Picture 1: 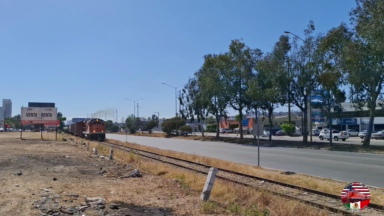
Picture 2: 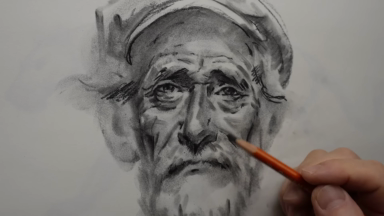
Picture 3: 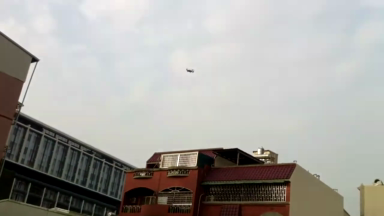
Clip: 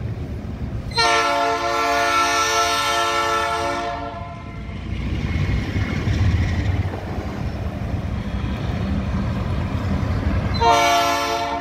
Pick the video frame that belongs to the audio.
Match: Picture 1